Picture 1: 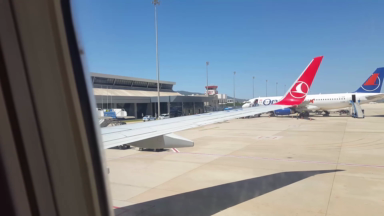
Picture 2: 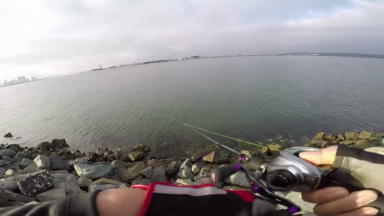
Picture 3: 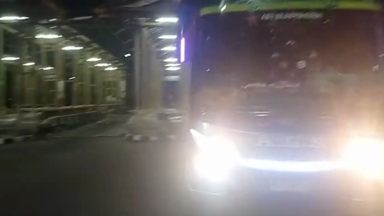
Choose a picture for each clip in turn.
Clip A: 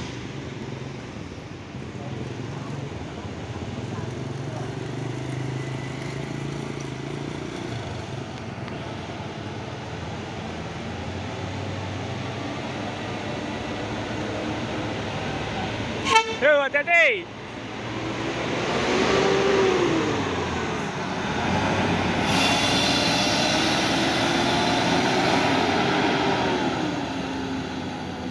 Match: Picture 3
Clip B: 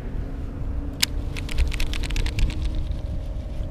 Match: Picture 2